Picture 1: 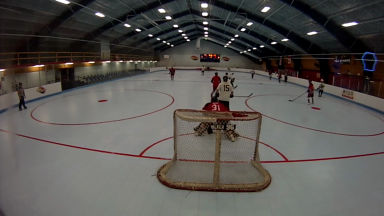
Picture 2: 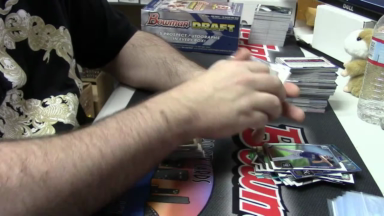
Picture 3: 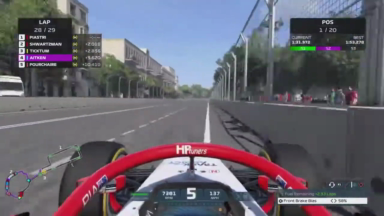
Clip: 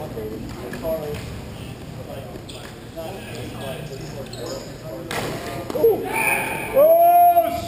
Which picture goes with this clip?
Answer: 1